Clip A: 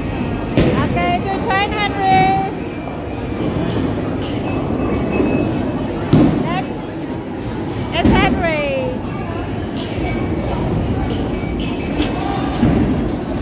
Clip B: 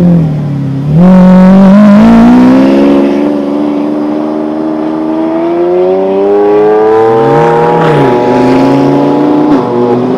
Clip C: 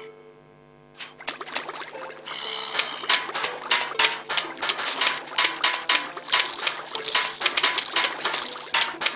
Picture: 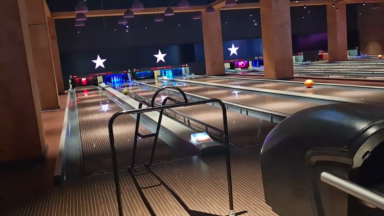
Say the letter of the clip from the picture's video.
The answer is A